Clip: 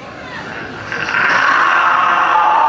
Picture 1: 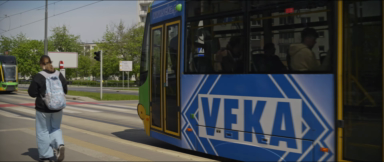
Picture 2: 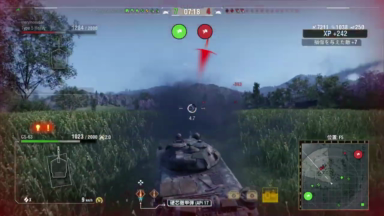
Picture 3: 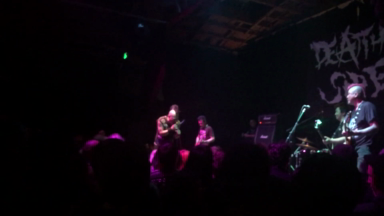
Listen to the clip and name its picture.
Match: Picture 3